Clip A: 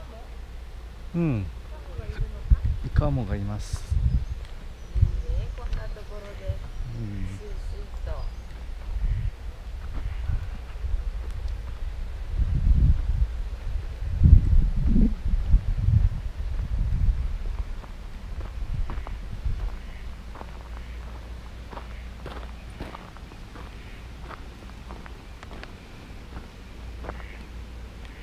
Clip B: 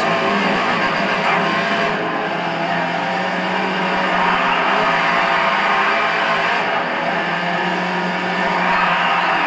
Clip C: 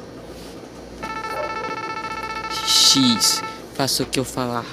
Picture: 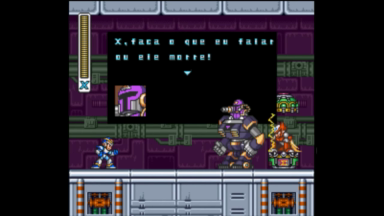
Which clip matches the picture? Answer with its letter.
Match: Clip C